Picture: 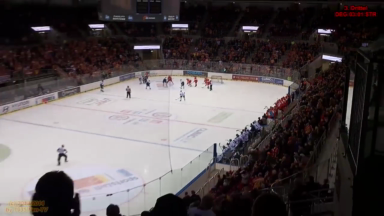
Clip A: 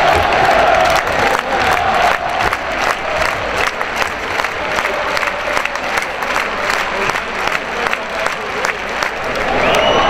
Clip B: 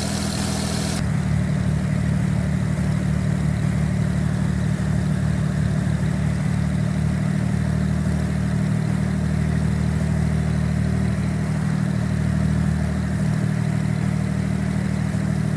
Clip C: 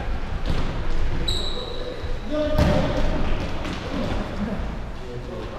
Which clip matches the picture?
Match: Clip A